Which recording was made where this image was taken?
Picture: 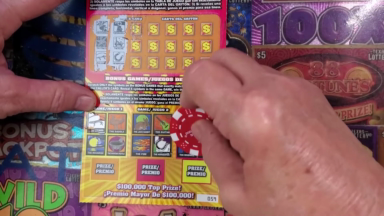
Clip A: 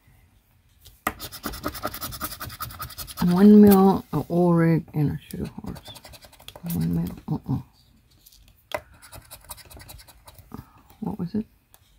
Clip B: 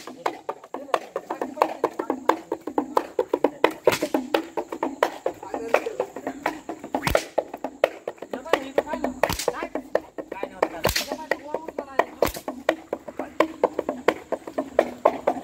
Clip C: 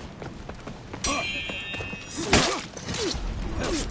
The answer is A